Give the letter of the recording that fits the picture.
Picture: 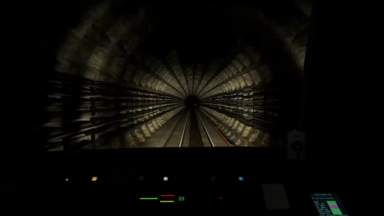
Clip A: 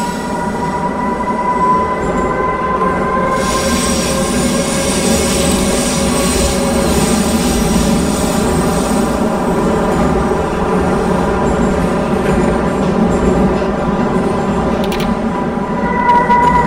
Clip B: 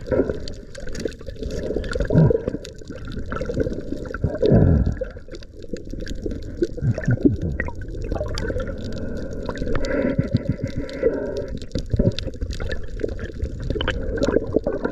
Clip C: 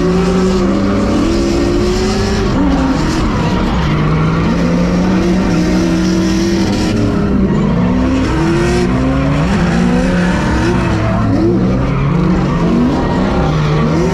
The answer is A